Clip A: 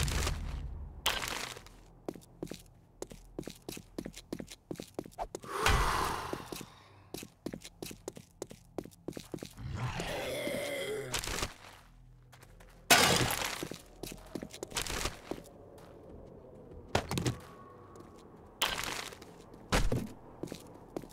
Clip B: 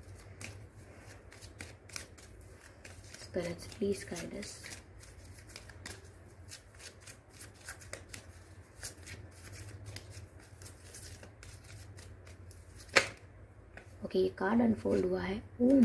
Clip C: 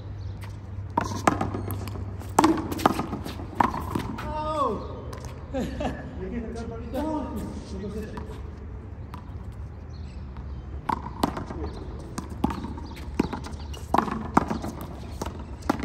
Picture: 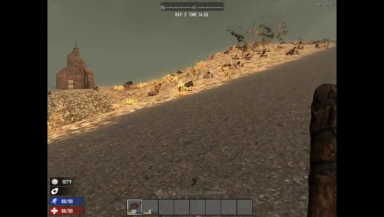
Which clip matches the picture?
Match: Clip A